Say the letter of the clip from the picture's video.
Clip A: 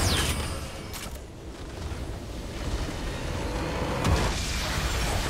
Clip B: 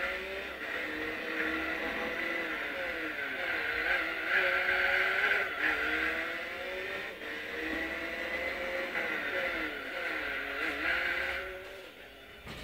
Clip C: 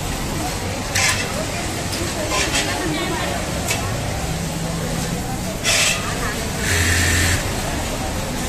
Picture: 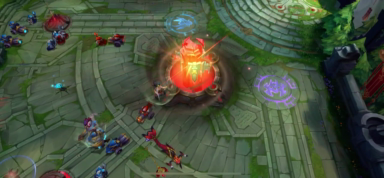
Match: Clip A